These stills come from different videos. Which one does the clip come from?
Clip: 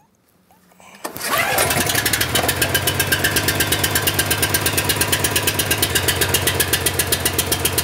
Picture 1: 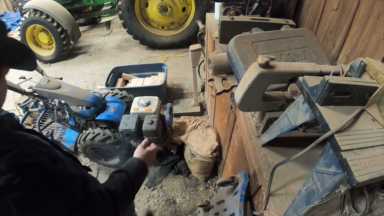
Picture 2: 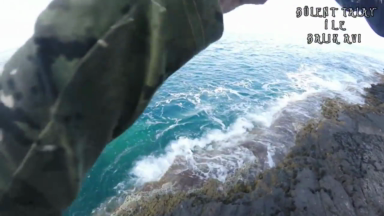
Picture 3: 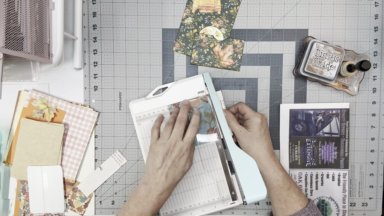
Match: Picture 1